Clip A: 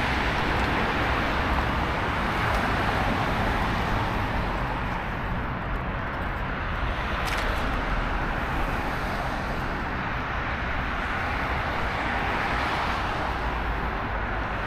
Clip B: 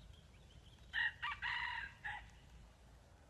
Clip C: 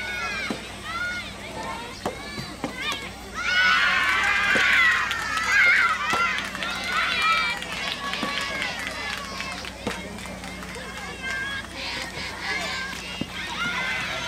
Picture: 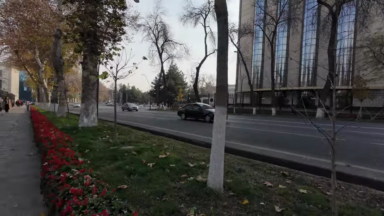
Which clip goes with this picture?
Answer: A